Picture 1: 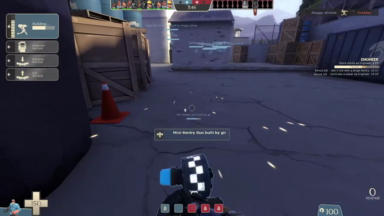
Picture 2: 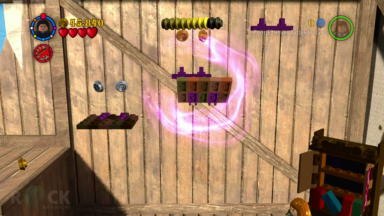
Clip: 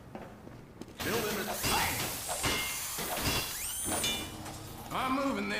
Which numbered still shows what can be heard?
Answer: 1